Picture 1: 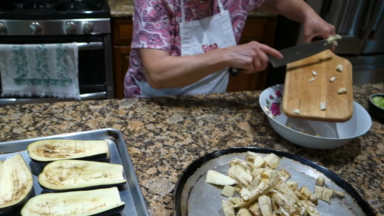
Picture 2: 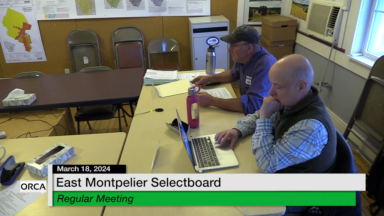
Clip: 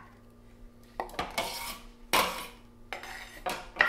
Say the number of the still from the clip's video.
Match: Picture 1